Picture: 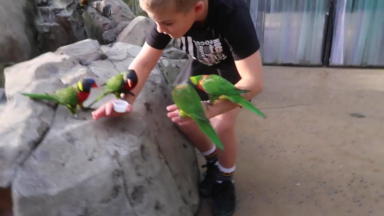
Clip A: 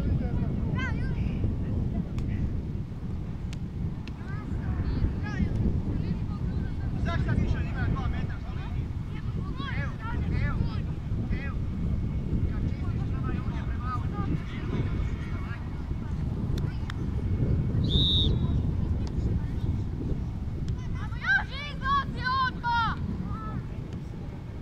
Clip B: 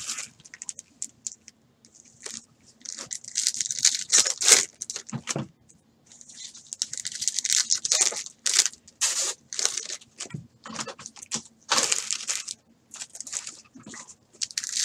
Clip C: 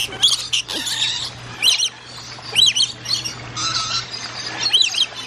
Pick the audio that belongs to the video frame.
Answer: C